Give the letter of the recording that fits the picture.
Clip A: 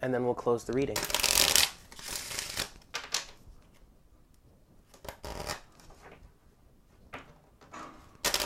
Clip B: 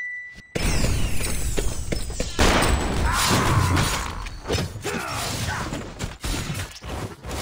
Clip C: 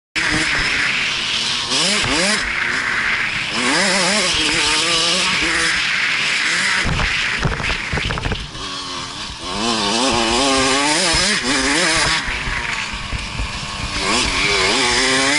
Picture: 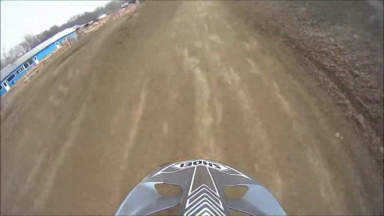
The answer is C